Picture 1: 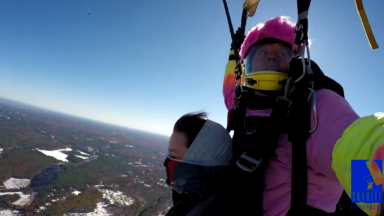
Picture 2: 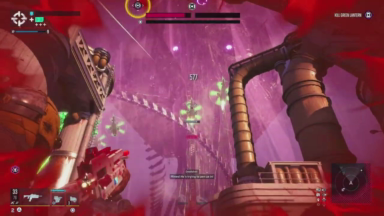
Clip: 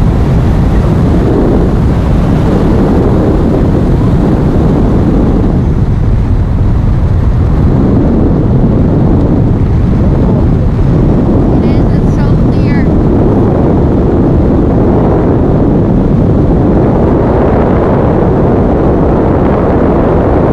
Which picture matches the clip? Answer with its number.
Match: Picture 1